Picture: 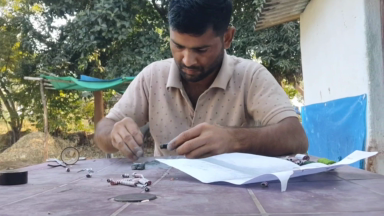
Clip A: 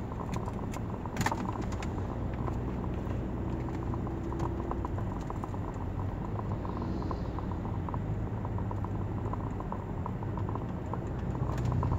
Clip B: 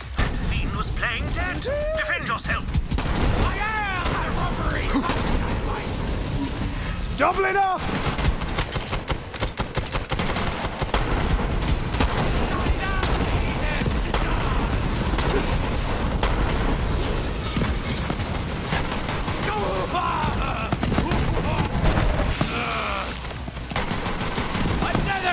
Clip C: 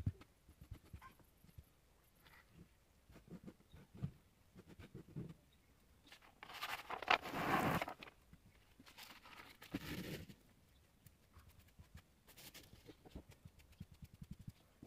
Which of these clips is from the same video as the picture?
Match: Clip C